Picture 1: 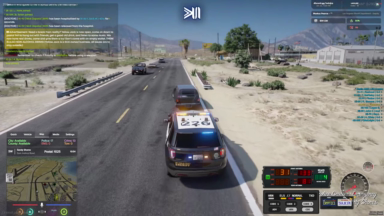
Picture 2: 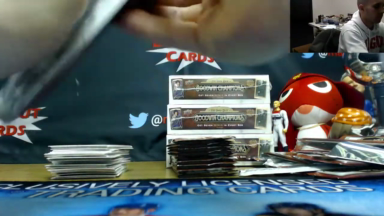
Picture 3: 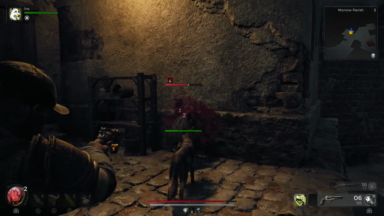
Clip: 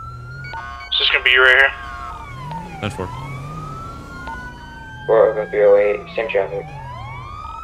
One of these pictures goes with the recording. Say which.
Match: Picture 1